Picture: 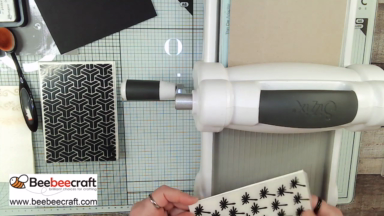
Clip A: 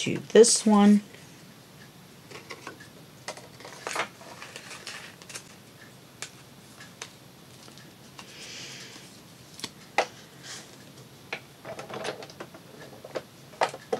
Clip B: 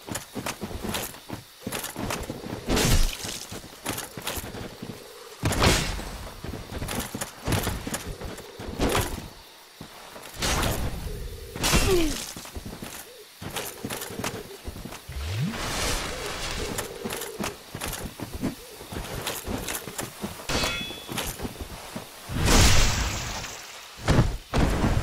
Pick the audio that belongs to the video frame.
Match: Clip A